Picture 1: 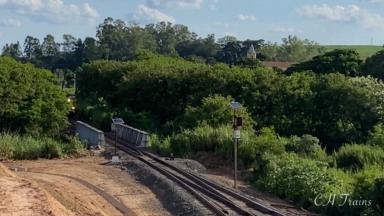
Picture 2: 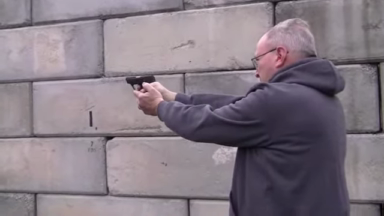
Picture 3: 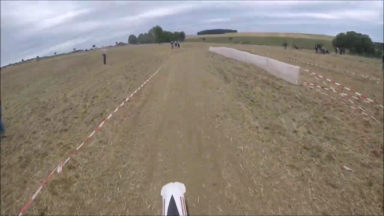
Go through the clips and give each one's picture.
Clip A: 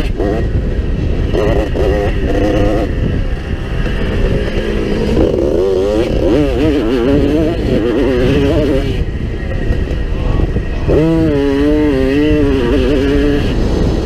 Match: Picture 3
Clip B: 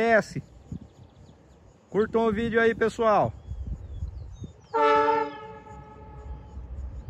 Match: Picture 1